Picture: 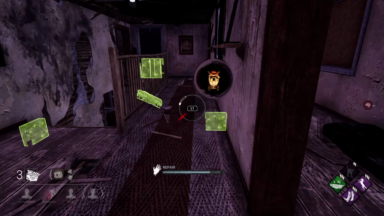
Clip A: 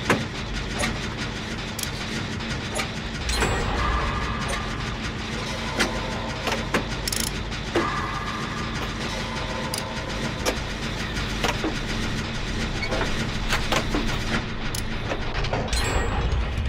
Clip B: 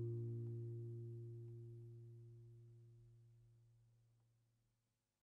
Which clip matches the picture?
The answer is A